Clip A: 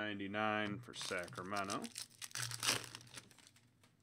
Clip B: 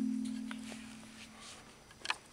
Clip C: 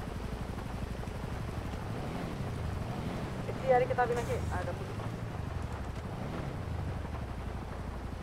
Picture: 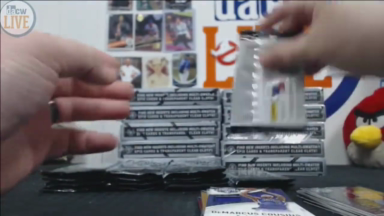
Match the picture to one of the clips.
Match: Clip A